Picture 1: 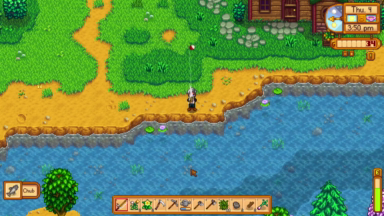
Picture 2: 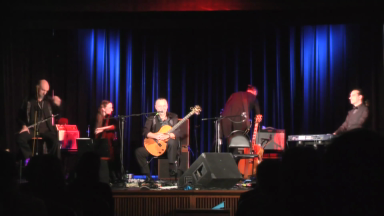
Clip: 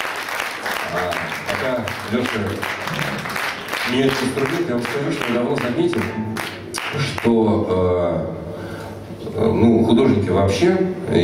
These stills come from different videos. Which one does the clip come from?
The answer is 2